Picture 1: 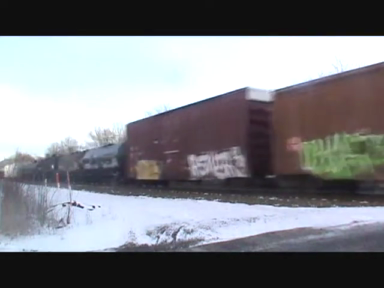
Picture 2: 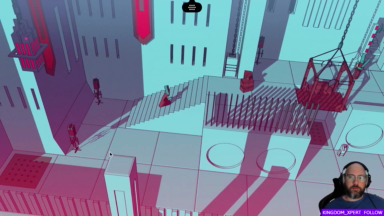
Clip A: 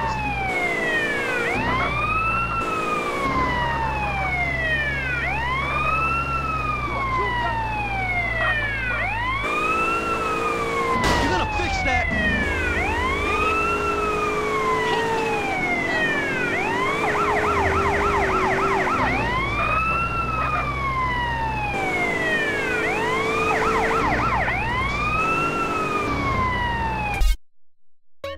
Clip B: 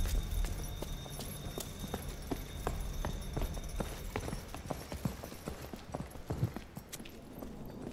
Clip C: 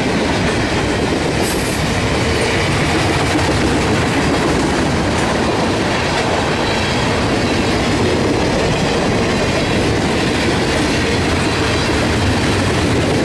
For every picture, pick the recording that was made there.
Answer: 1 C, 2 B